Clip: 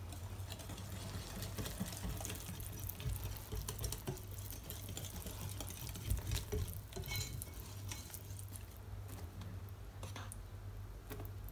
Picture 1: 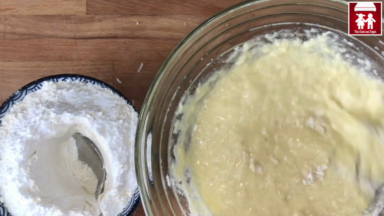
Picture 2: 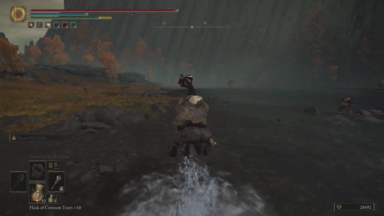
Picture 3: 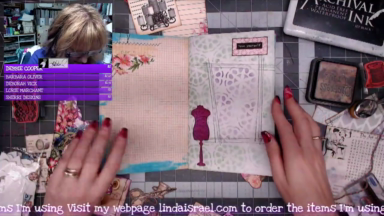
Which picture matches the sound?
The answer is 1